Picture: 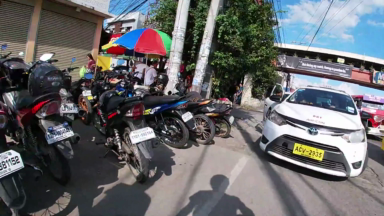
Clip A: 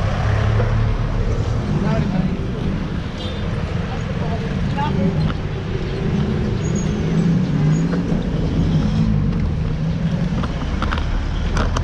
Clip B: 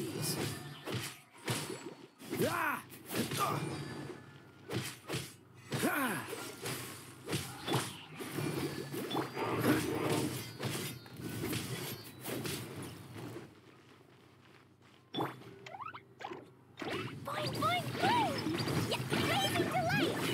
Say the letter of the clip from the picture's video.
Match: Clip A